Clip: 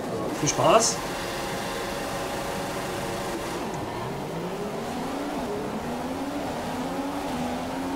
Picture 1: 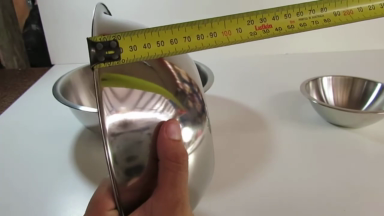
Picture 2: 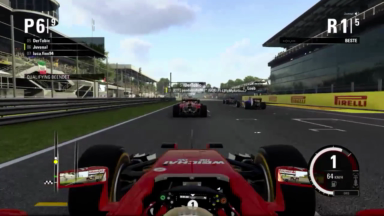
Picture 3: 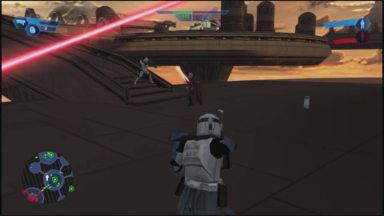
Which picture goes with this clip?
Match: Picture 2